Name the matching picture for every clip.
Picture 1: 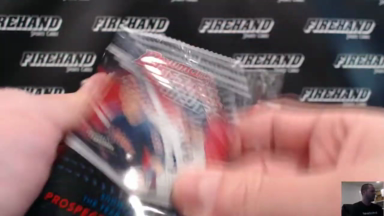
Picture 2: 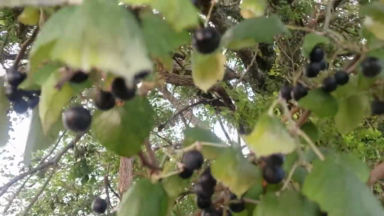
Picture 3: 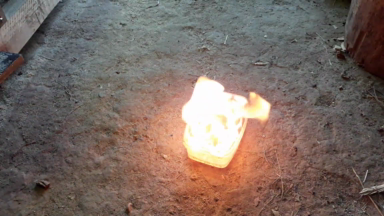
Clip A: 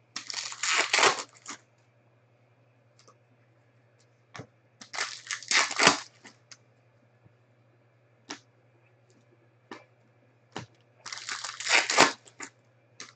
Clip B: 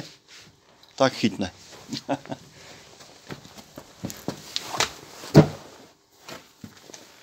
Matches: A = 1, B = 3